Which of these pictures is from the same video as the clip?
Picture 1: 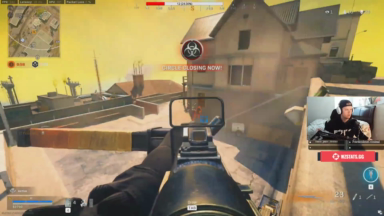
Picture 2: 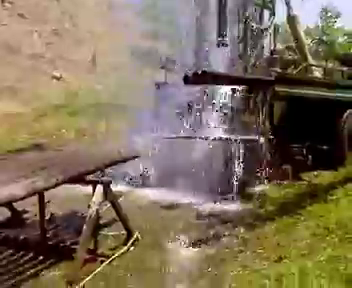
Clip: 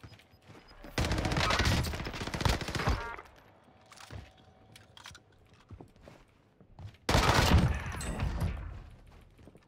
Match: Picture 1